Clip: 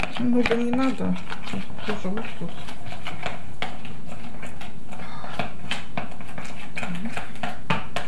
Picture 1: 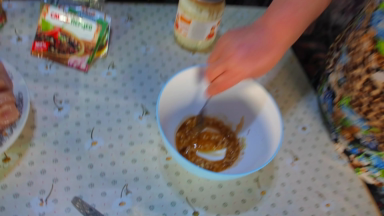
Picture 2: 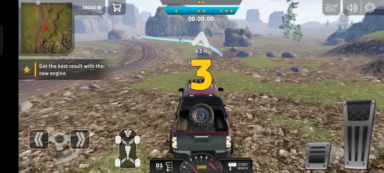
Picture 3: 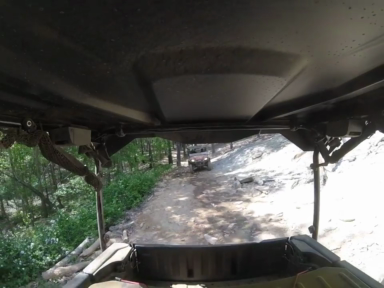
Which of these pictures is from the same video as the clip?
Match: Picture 1